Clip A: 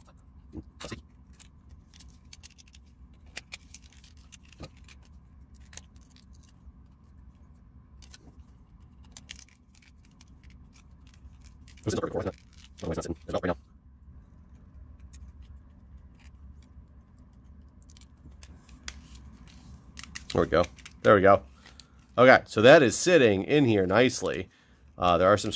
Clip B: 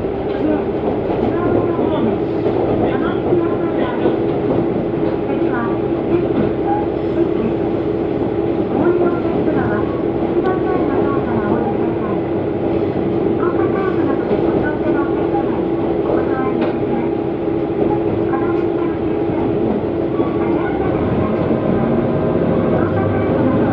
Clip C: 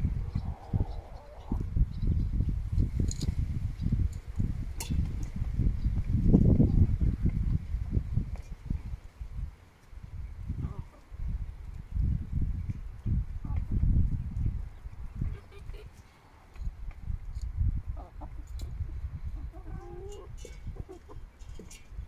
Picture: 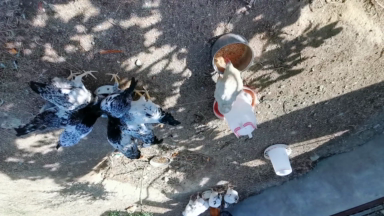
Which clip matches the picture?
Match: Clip C